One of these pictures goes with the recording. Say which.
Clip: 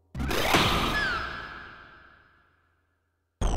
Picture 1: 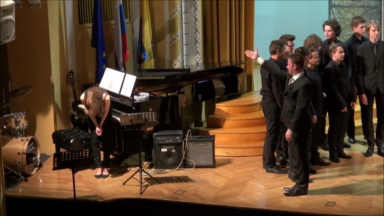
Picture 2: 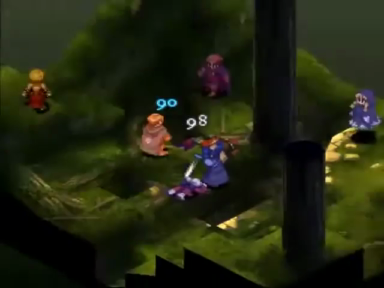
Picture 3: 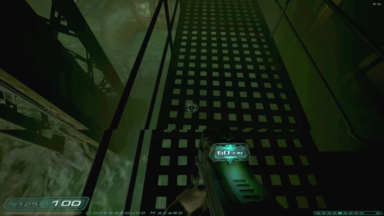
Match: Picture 2